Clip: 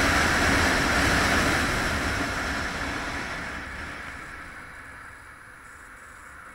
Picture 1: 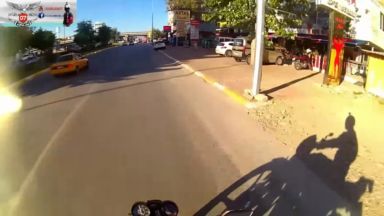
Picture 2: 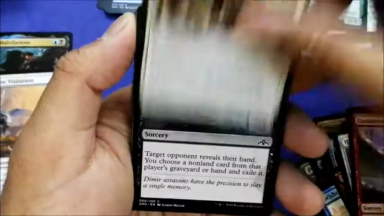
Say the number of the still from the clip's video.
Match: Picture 1